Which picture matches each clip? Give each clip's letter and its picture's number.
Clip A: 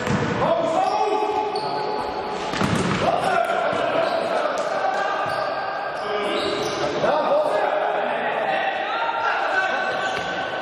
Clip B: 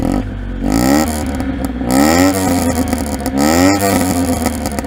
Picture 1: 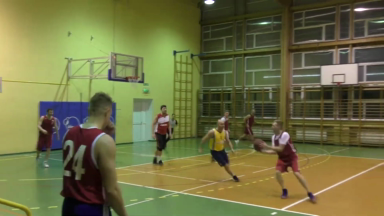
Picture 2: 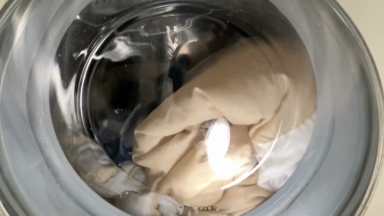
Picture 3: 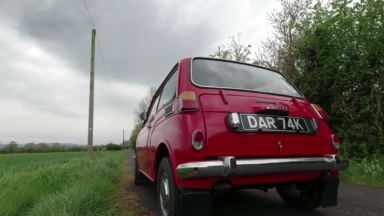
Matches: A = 1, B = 3